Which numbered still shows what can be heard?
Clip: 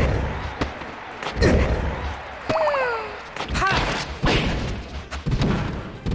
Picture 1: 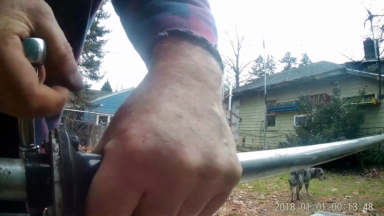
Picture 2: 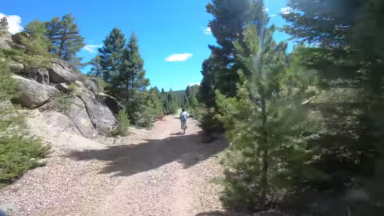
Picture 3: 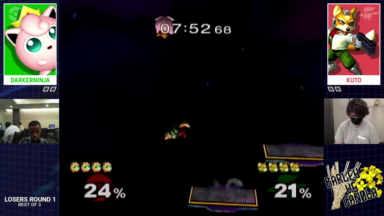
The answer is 3